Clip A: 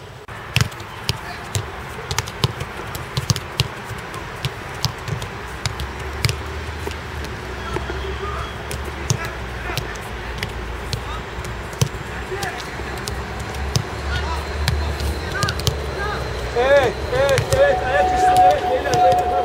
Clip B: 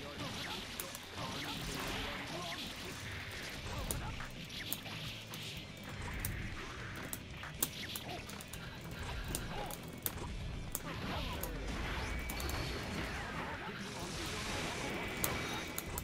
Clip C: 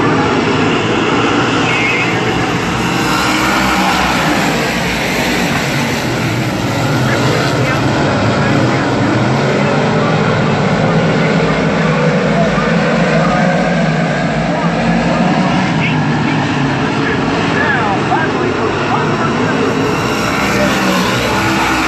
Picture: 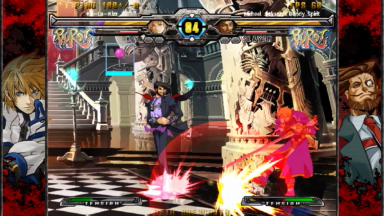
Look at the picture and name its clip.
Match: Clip B